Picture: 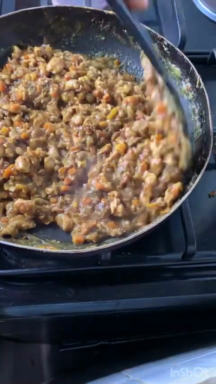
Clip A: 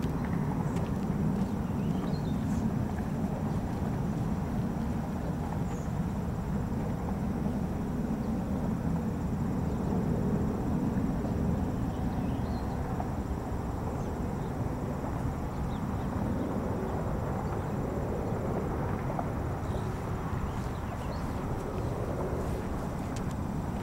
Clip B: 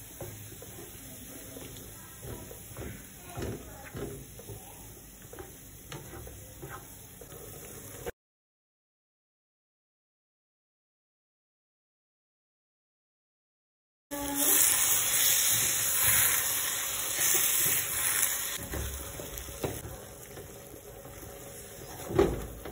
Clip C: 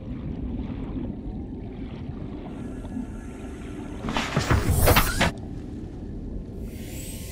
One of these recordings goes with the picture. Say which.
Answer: B